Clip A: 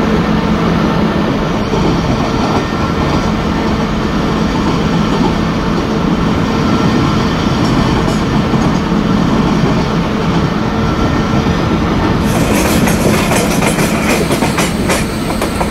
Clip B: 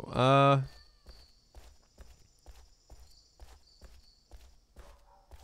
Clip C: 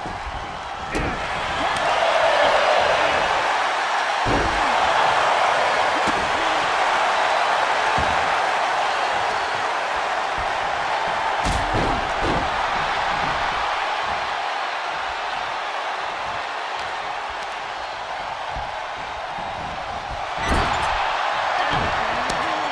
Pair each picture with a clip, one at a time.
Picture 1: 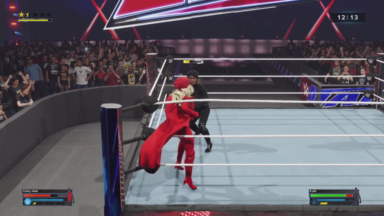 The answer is C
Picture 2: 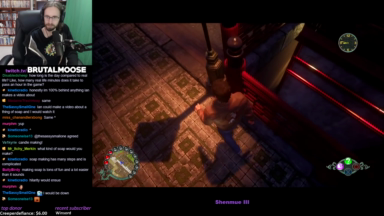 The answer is B